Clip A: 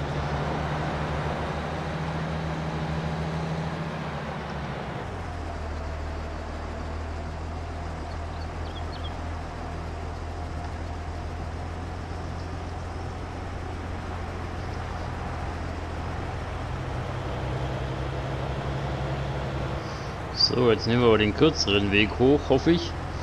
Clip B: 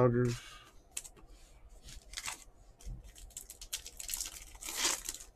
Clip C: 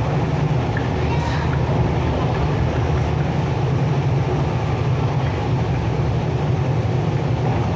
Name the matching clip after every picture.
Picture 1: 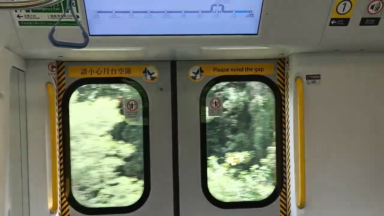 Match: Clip C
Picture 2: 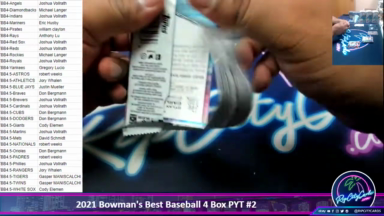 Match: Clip B